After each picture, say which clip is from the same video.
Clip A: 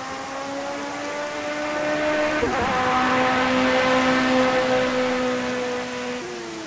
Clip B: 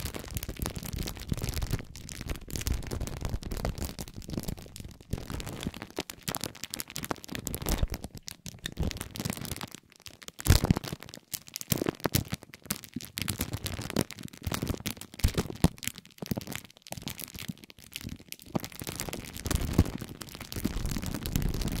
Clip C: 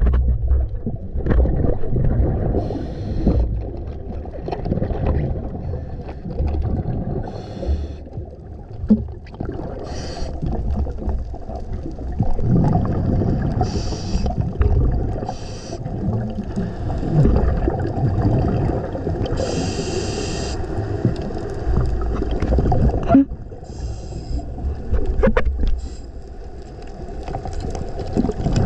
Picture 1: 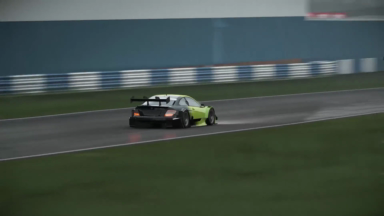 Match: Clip A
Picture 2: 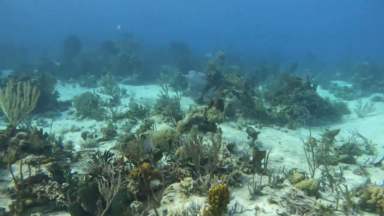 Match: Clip C